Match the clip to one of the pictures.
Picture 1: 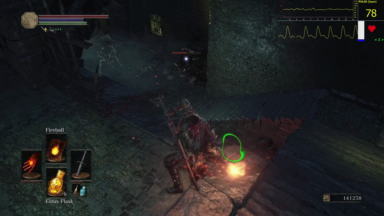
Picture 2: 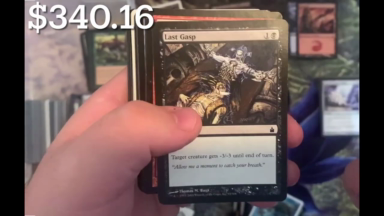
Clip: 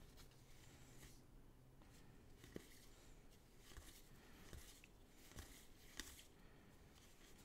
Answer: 2